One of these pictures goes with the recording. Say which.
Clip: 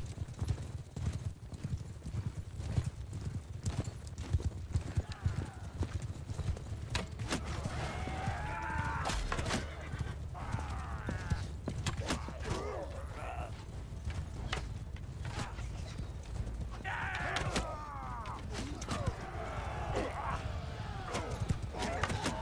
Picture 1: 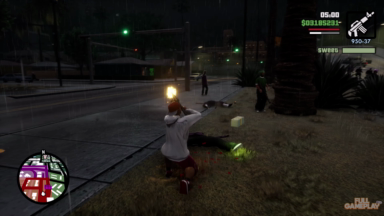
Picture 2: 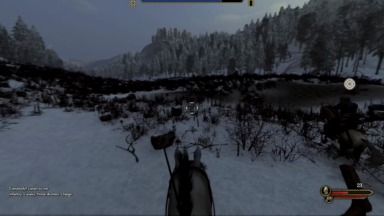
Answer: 2